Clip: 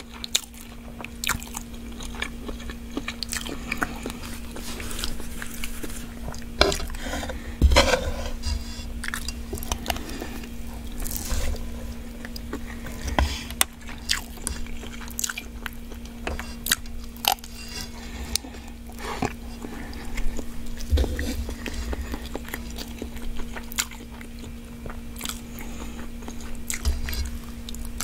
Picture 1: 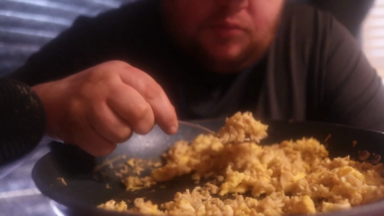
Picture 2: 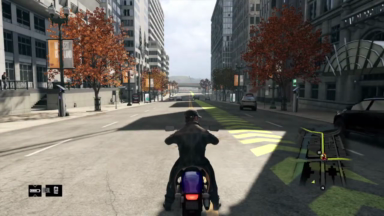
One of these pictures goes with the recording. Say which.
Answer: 1